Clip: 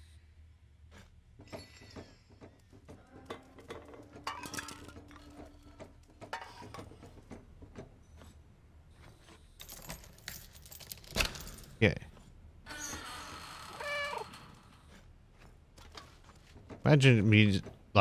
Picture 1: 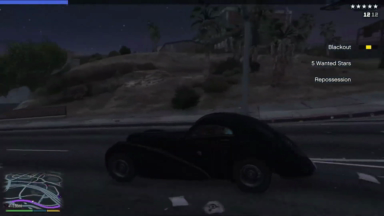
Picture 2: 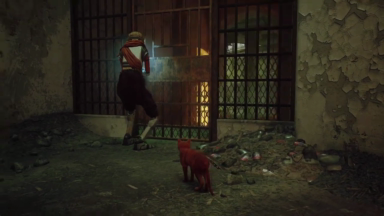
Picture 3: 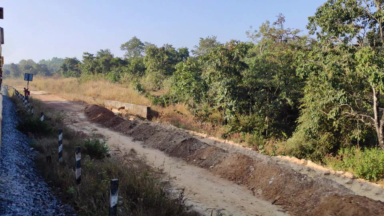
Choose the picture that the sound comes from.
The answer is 2